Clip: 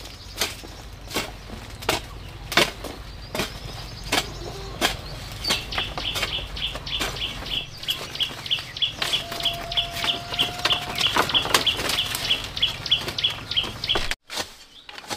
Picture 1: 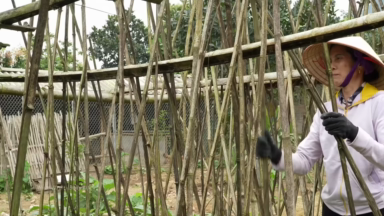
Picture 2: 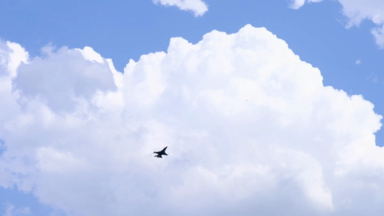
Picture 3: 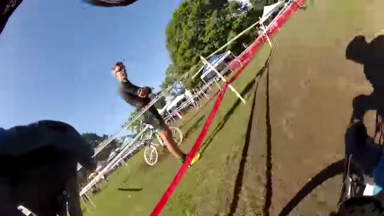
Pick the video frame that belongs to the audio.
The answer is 1